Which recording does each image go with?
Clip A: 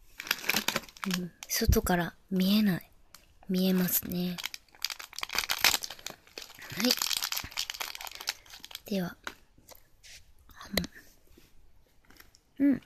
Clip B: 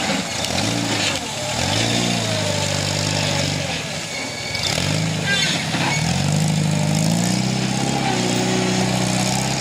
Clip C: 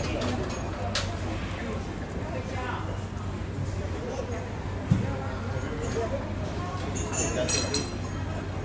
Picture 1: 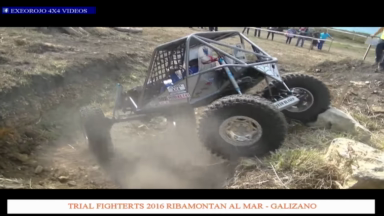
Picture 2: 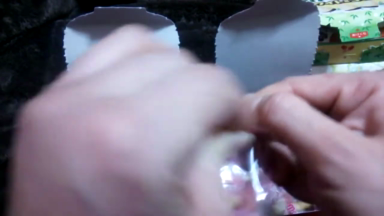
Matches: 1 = B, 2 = A